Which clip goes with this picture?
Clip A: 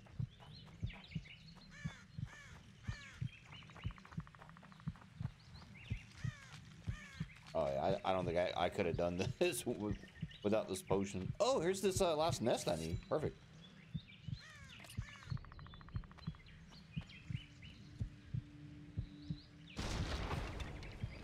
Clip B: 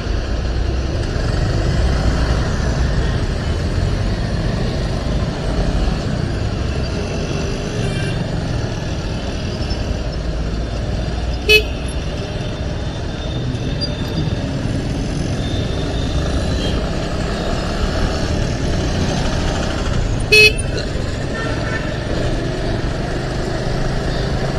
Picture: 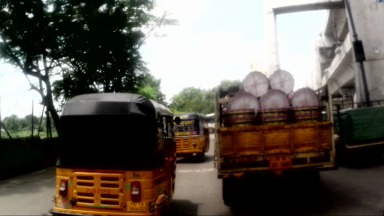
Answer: B